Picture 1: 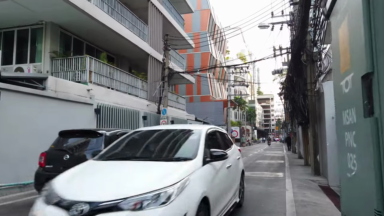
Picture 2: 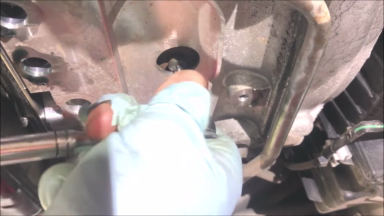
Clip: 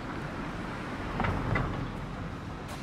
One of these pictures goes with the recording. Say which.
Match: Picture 1